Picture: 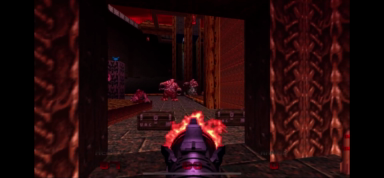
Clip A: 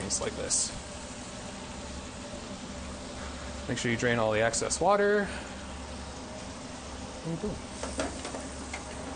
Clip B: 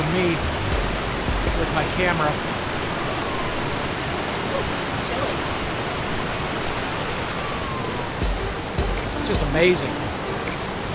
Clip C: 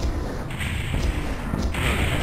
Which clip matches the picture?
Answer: C